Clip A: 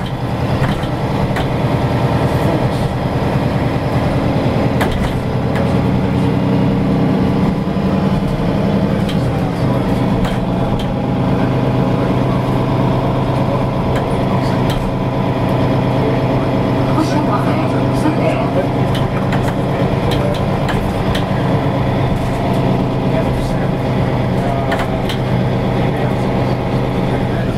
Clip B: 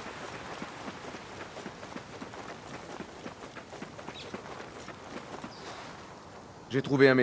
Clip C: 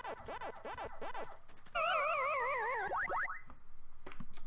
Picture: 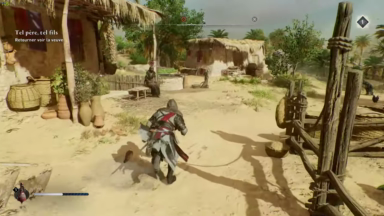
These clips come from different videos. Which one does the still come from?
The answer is B